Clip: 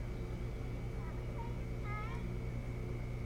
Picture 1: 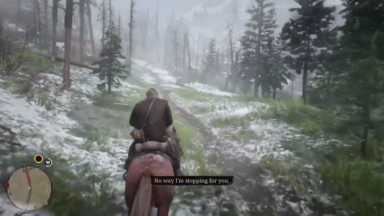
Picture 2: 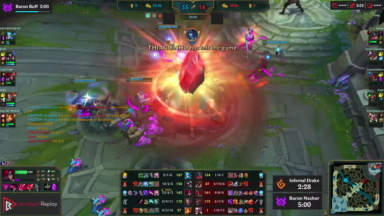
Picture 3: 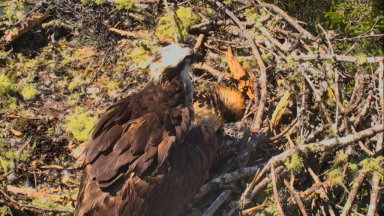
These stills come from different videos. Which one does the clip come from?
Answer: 3